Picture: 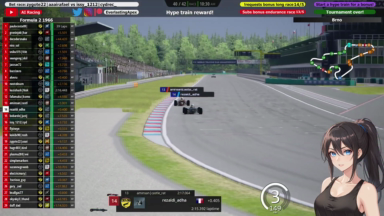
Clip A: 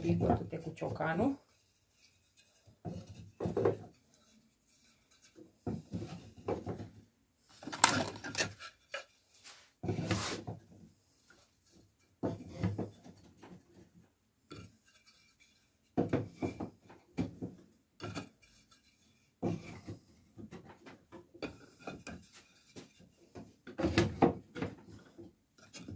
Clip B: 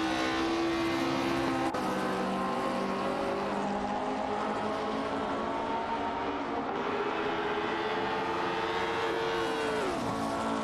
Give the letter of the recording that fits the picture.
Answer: B